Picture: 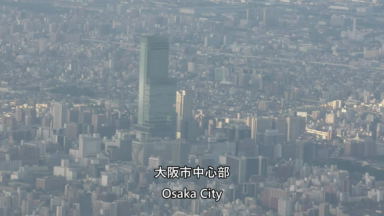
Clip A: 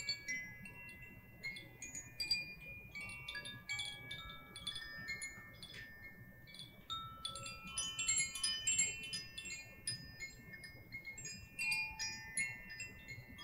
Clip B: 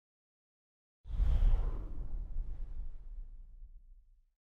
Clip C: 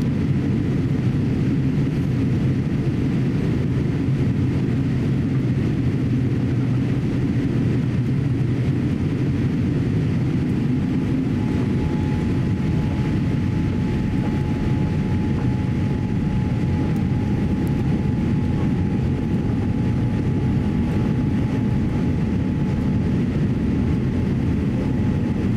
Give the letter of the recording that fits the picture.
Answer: C